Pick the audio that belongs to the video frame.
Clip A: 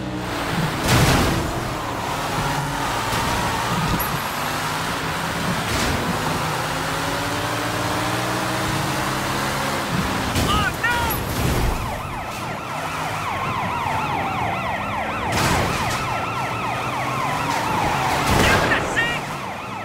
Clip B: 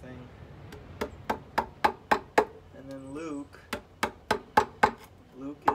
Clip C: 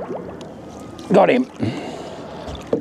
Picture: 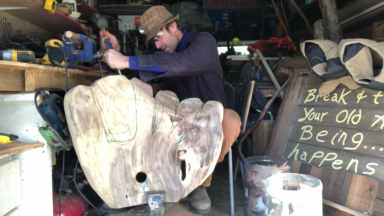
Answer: B